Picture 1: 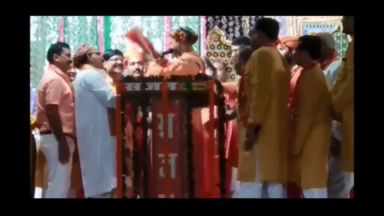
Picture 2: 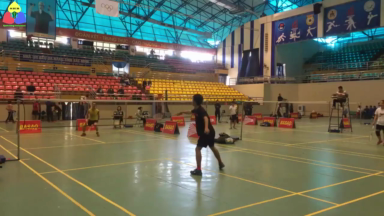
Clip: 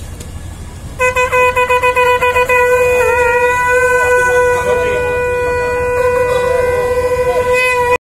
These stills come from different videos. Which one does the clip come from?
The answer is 1